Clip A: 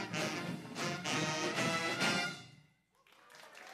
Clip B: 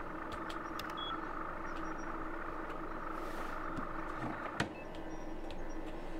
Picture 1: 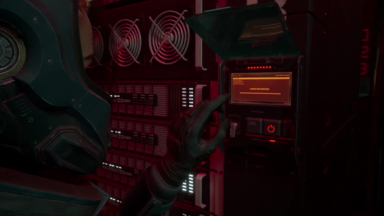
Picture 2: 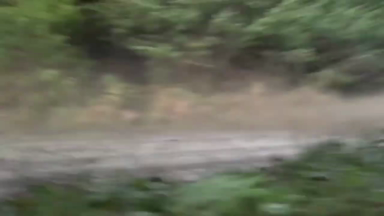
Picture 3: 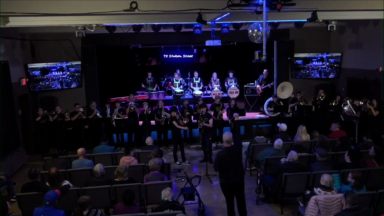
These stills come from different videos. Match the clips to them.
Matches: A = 3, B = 1